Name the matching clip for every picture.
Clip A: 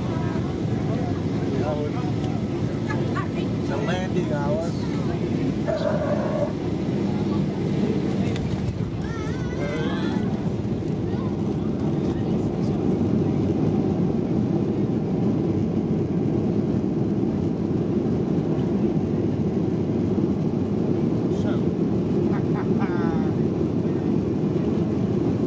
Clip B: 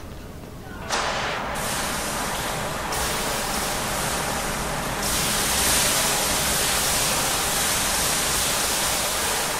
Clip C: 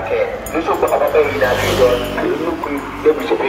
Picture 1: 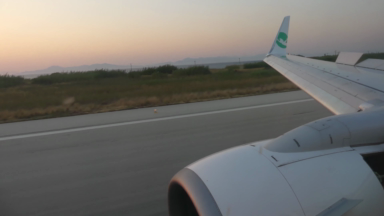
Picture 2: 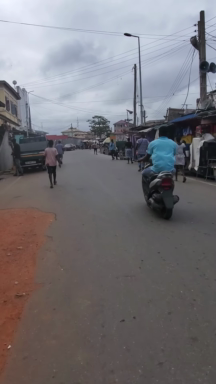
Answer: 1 A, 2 C